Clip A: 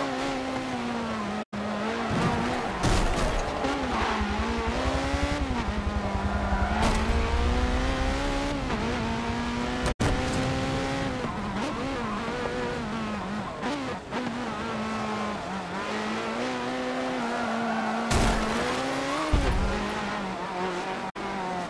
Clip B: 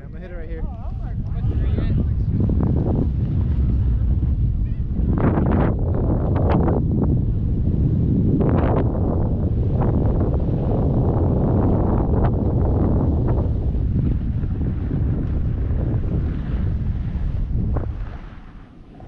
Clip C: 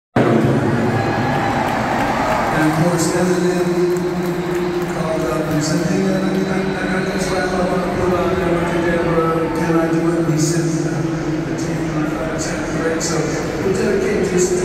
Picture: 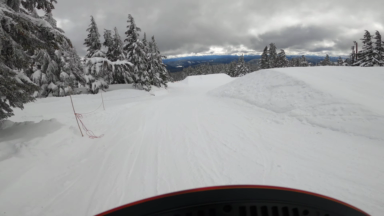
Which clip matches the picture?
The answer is B